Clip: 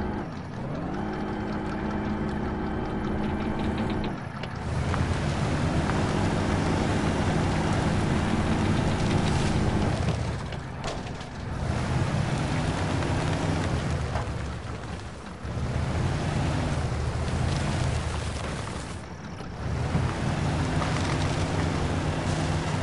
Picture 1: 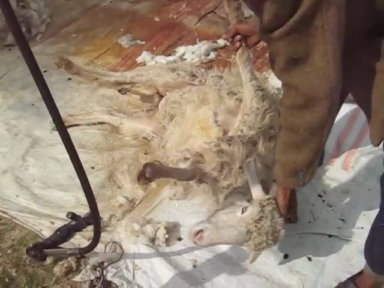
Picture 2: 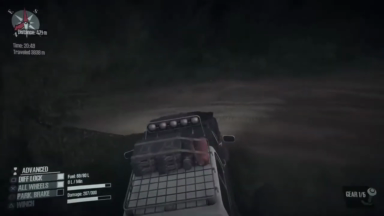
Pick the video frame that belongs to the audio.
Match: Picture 2